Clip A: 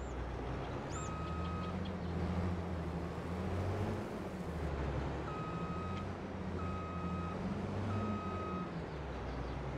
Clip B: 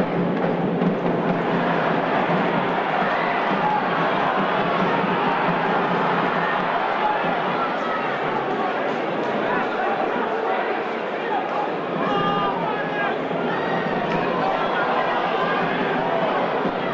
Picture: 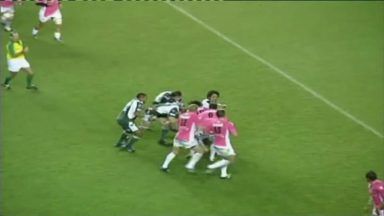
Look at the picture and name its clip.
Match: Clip B